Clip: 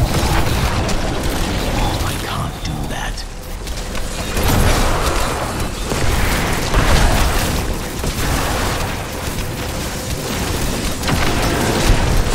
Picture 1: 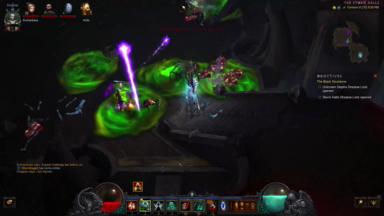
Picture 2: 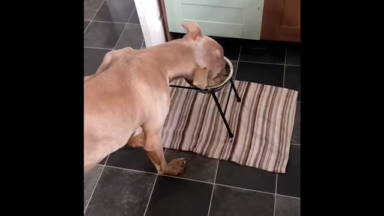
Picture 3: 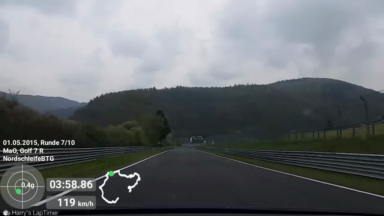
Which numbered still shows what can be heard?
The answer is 1